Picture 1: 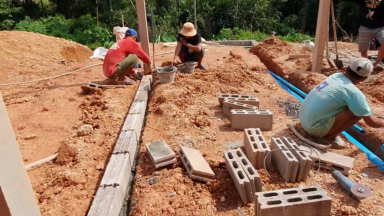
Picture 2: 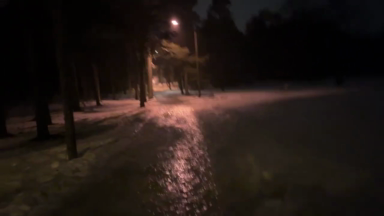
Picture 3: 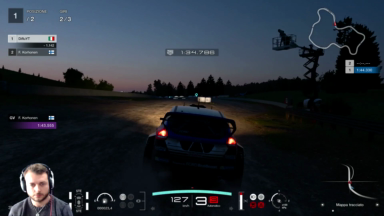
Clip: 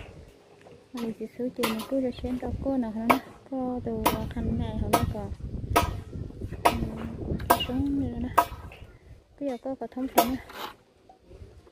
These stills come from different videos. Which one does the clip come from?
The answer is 1